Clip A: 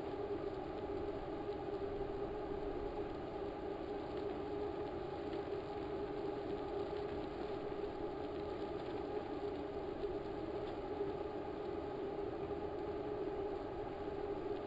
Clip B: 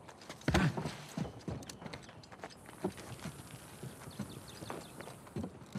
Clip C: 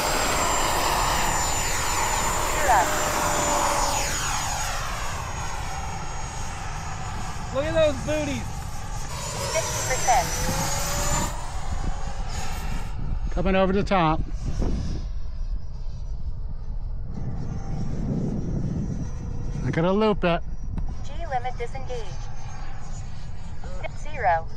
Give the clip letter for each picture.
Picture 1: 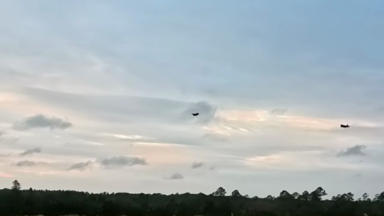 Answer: C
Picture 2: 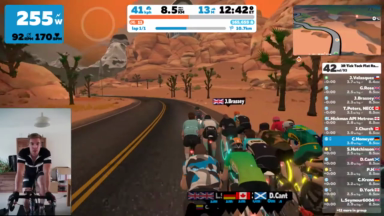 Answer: A